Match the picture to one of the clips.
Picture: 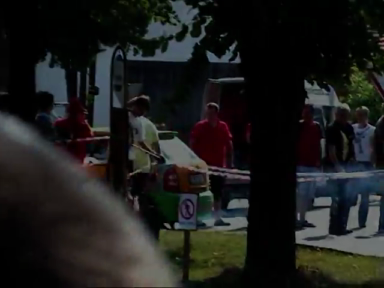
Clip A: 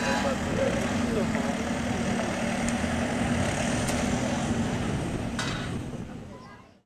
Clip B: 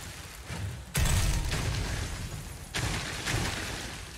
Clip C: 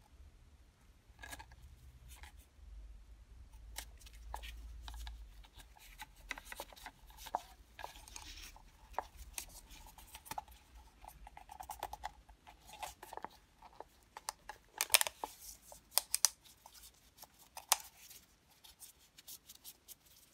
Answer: A